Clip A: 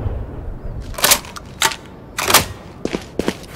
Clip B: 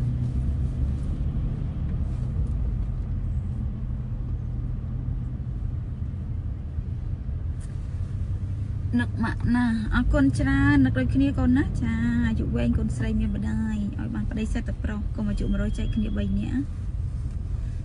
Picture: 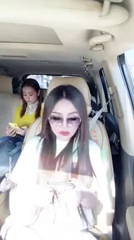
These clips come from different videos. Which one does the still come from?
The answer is B